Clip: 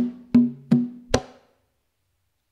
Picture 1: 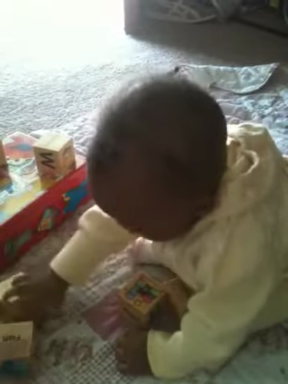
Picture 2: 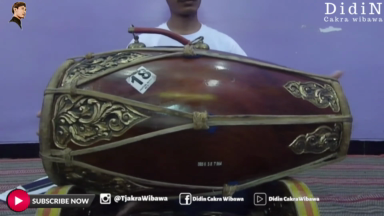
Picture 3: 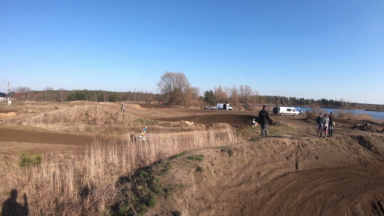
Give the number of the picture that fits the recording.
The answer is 2